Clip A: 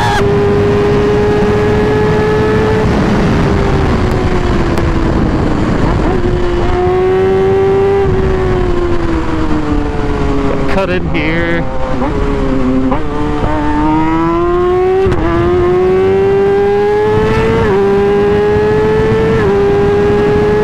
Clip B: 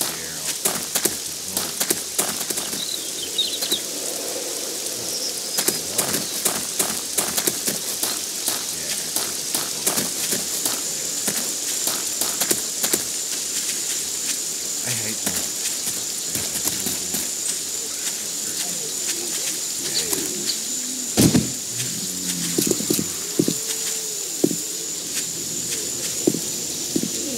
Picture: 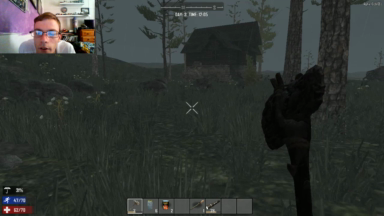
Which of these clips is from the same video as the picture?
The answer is B